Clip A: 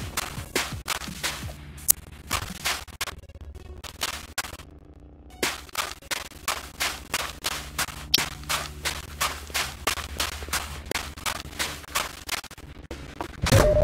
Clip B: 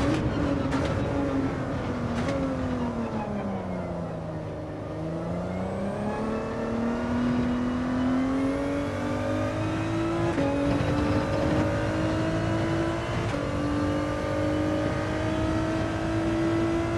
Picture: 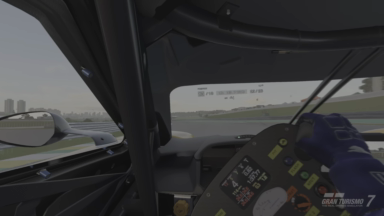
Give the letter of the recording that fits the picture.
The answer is B